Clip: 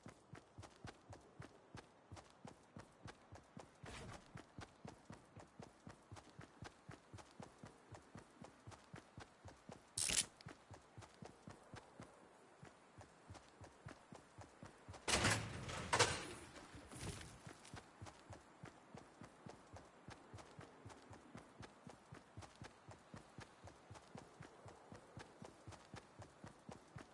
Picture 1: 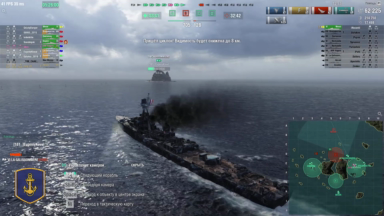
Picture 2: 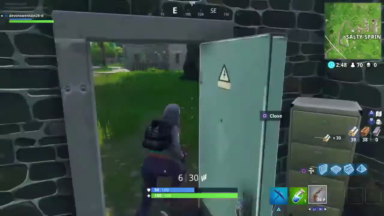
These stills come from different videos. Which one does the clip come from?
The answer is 2